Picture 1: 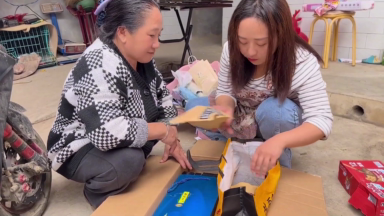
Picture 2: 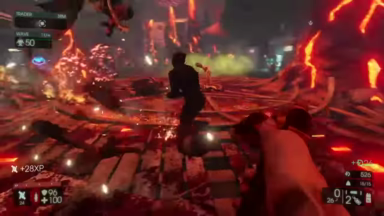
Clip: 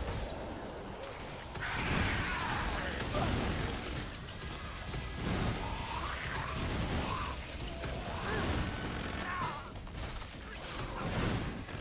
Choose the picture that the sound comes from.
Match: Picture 2